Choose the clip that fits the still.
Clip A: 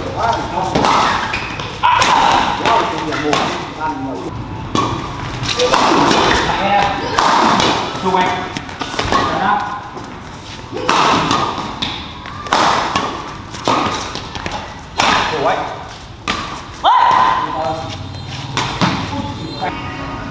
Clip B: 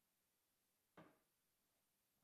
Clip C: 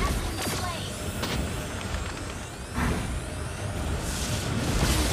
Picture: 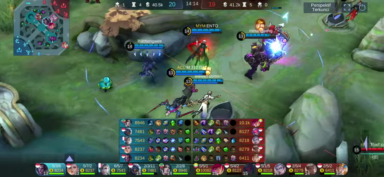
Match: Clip C